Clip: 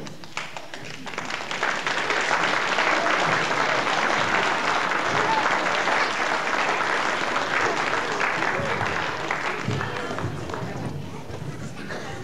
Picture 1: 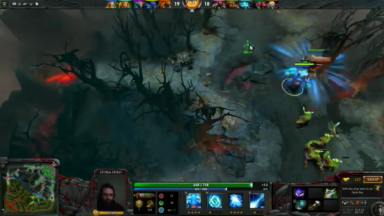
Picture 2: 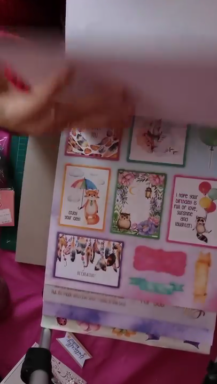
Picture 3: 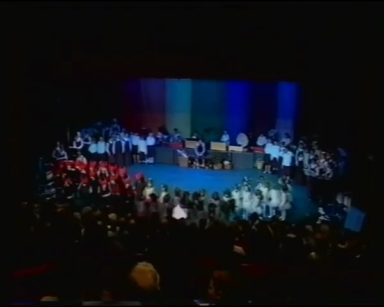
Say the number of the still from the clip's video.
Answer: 3